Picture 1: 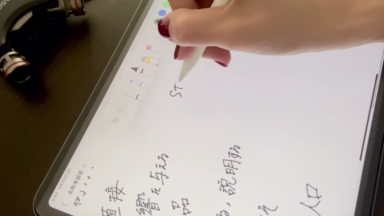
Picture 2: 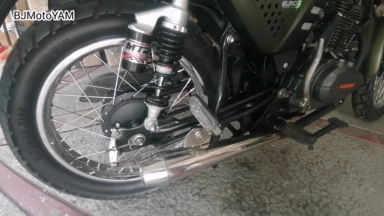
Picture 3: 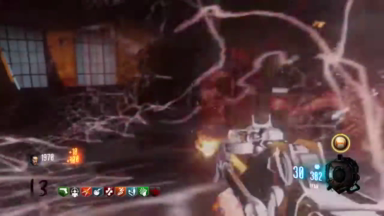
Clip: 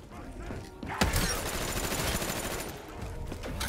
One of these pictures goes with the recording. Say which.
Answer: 3